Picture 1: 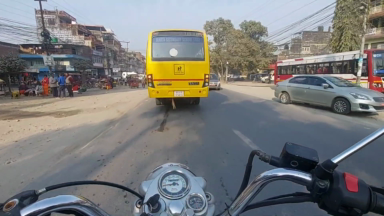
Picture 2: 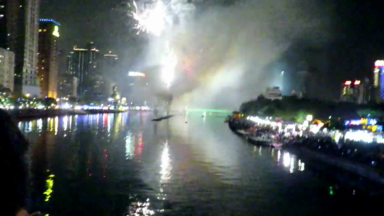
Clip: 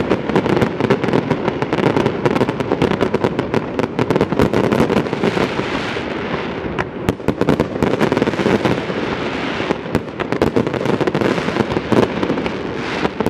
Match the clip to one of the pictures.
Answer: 2